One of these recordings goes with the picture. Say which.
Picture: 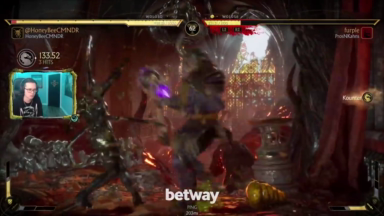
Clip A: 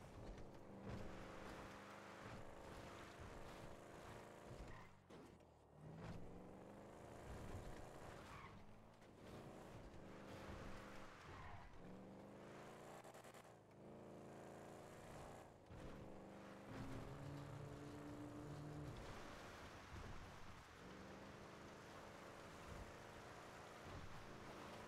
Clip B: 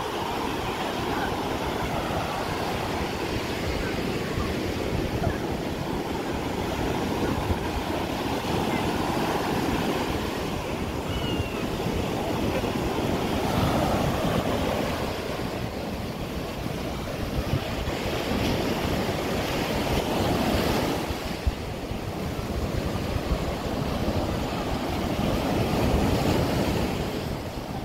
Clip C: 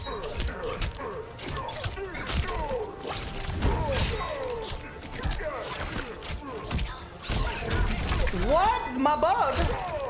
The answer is C